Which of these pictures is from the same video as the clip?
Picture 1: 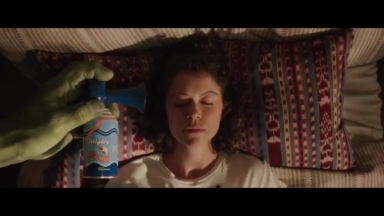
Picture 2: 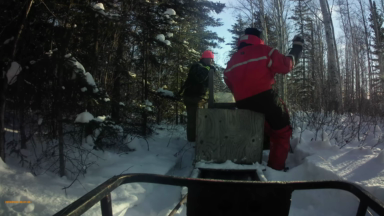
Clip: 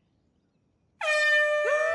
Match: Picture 1